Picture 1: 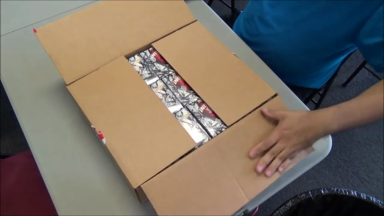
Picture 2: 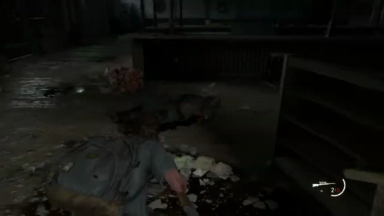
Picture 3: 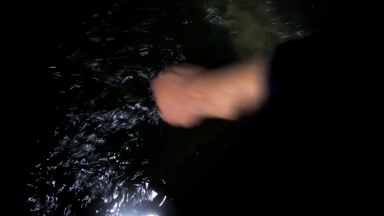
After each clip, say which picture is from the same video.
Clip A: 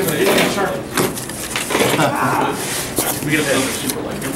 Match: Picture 1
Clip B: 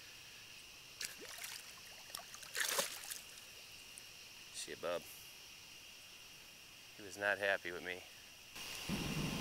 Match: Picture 3